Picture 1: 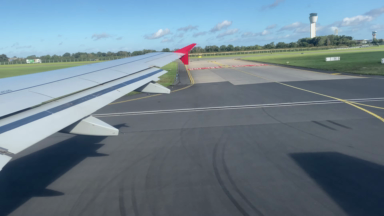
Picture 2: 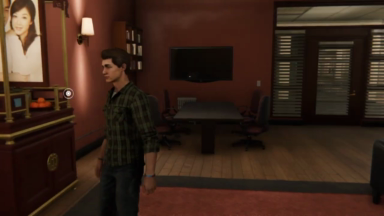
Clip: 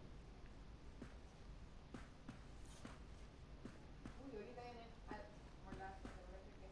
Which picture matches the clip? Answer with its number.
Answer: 2